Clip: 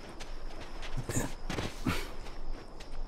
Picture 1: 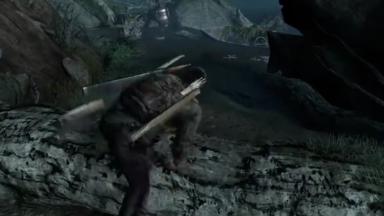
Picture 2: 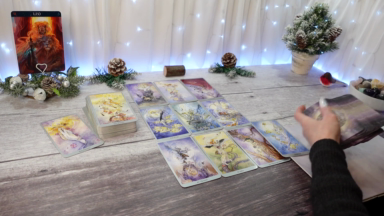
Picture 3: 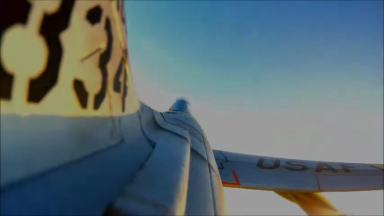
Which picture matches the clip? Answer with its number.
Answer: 1